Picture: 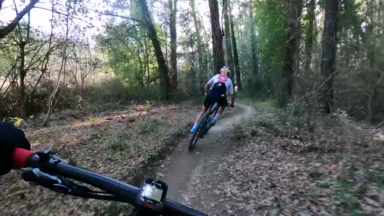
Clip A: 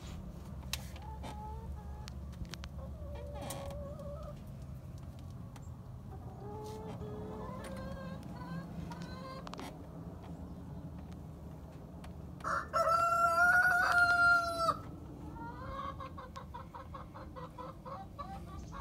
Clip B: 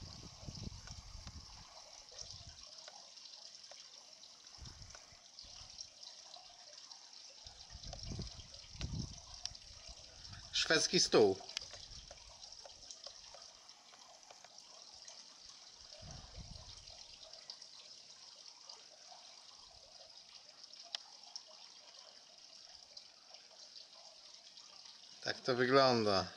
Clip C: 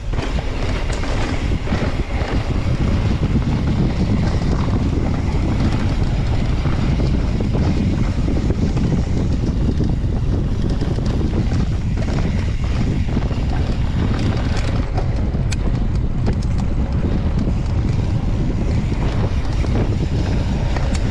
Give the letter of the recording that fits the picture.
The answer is C